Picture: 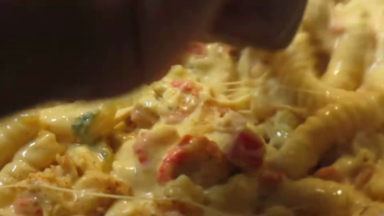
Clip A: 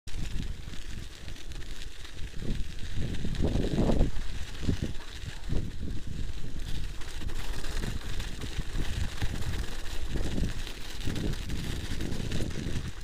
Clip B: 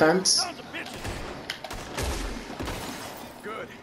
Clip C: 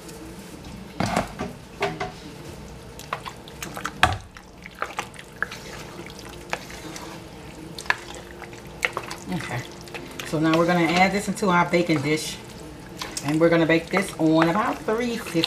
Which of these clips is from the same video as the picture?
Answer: C